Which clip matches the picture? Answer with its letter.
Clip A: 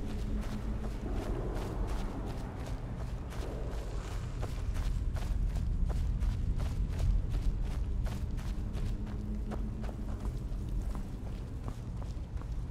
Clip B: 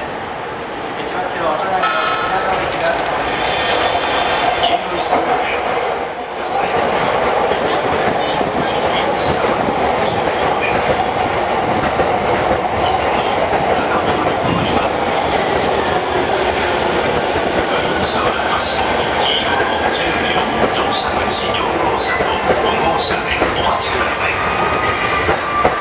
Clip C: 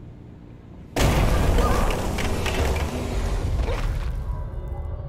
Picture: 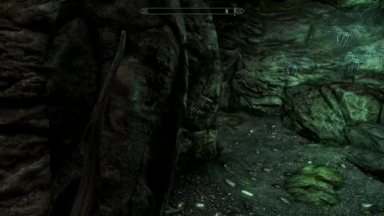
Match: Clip A